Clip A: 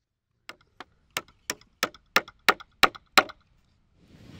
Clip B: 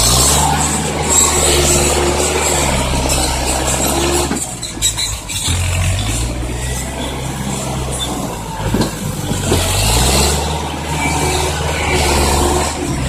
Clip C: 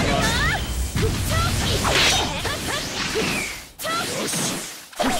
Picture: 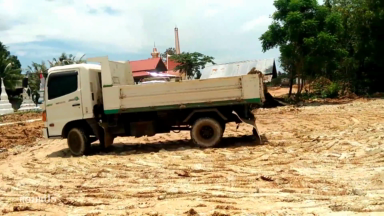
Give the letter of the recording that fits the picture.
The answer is B